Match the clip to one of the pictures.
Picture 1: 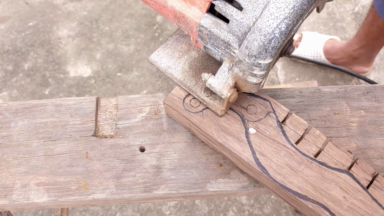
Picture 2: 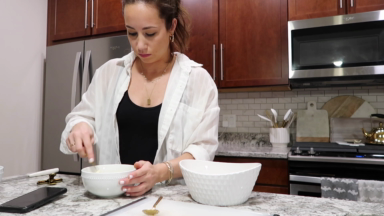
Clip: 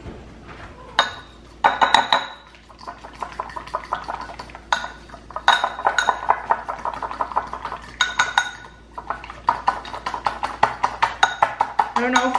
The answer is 2